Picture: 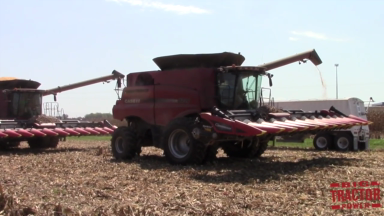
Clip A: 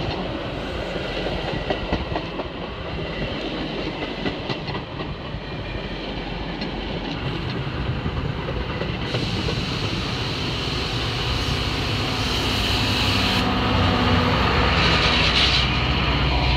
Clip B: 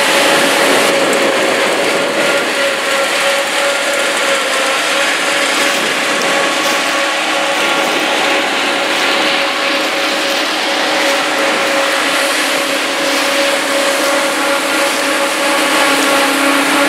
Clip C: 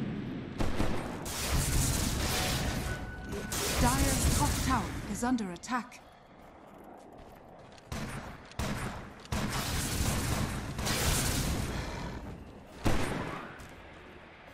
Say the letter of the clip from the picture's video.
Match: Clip B